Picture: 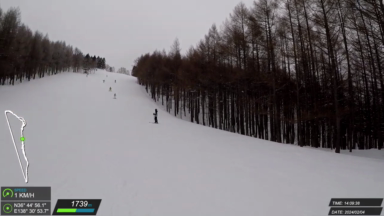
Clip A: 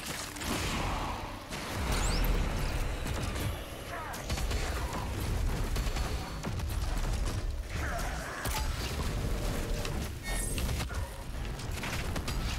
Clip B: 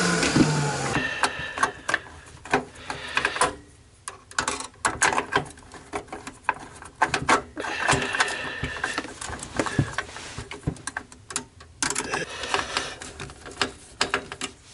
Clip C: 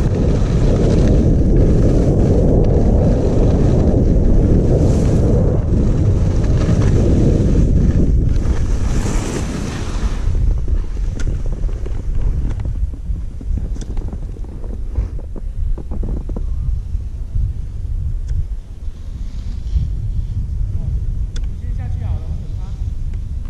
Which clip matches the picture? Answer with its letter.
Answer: C